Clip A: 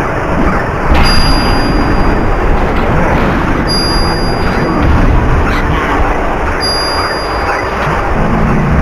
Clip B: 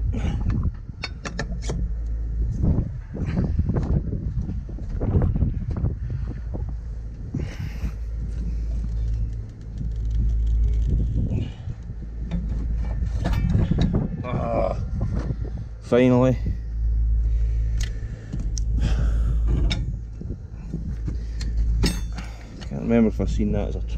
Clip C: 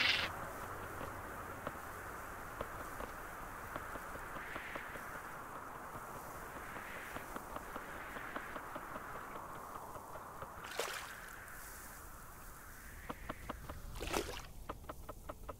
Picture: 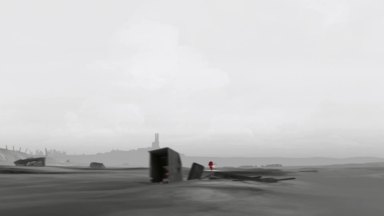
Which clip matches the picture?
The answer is C